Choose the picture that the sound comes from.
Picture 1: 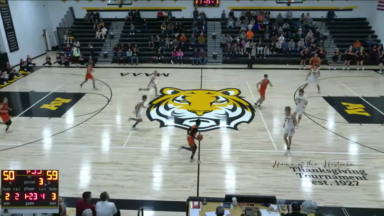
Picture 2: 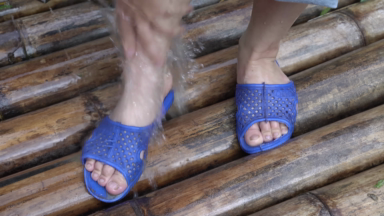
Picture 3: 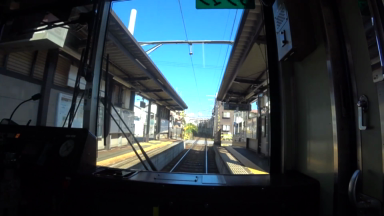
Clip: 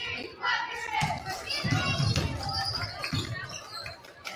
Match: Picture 1